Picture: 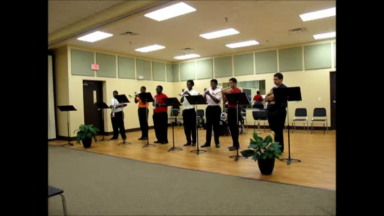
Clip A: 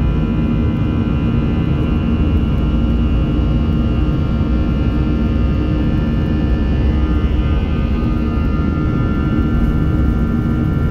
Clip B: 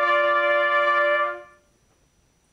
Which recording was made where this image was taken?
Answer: B